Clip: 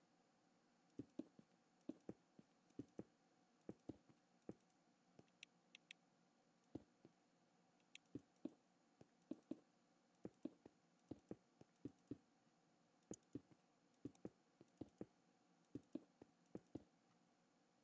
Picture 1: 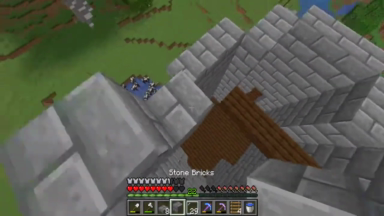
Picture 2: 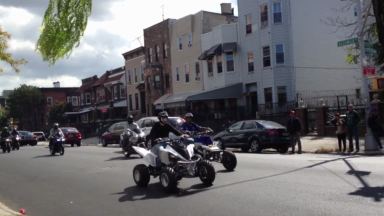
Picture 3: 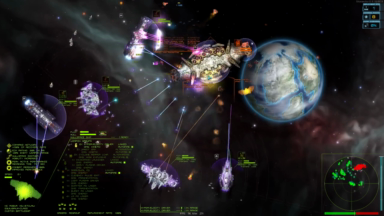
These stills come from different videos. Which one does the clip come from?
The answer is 1